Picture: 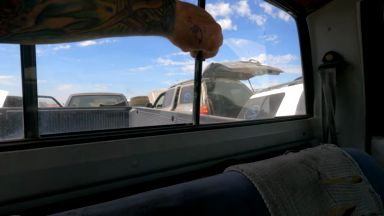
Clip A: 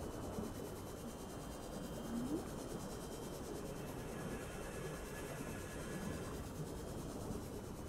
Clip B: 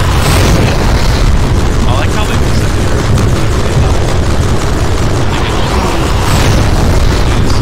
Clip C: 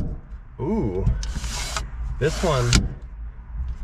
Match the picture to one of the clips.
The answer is C